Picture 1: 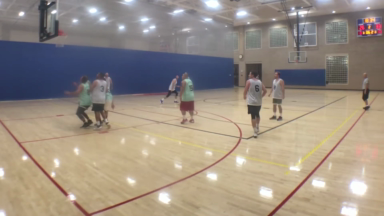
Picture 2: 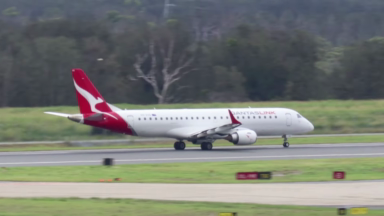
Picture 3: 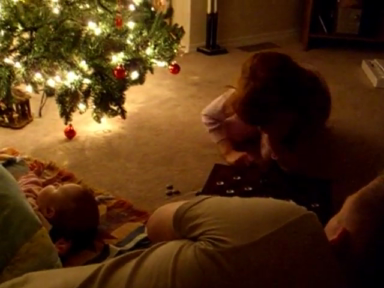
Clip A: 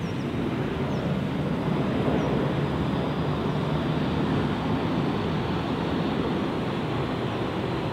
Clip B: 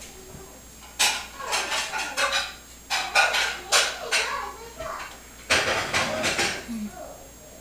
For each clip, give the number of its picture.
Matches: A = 2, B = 3